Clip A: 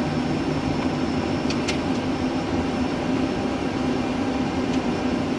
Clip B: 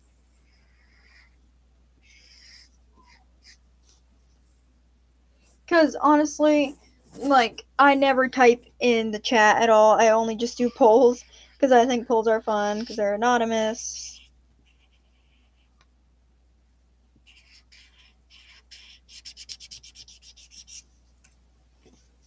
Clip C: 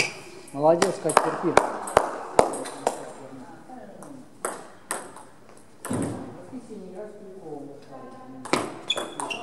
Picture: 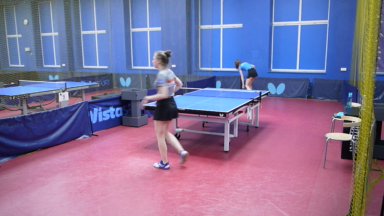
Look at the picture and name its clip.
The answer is C